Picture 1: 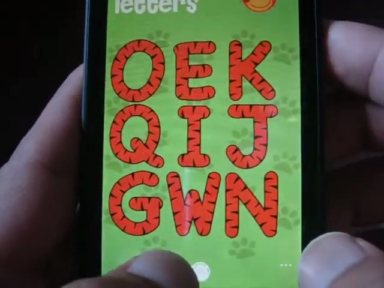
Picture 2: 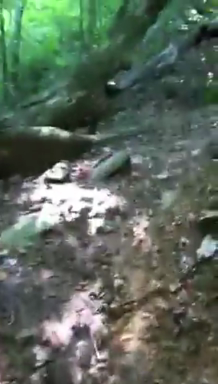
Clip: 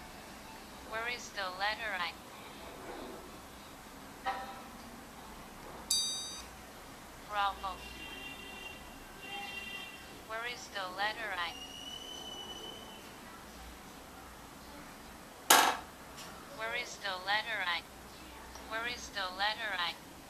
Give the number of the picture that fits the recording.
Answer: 1